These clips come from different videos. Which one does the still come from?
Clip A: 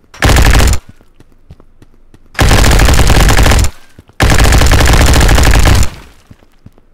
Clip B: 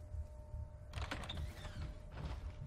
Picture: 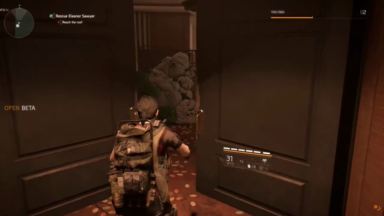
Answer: B